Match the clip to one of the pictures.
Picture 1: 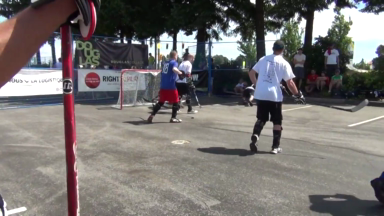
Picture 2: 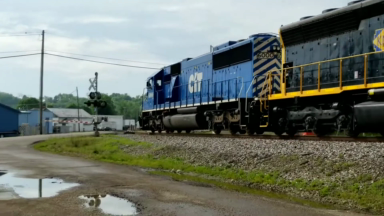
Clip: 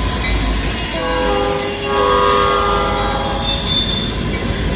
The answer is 2